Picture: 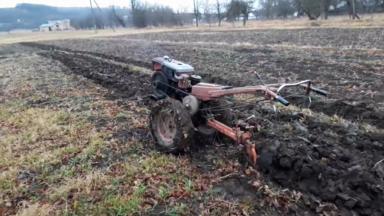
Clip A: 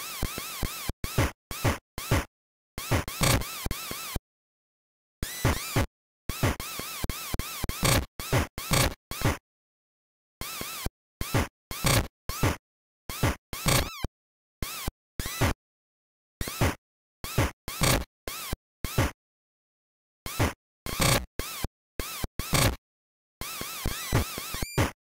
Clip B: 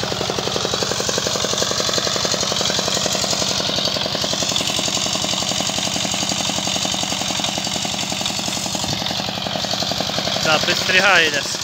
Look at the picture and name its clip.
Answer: B